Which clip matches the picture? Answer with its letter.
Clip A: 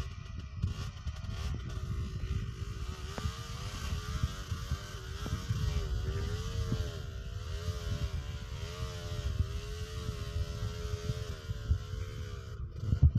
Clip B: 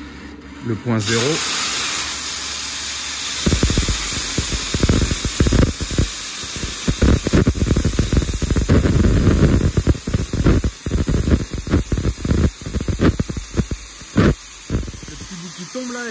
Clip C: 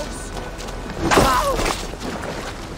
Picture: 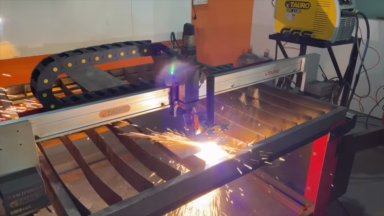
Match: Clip B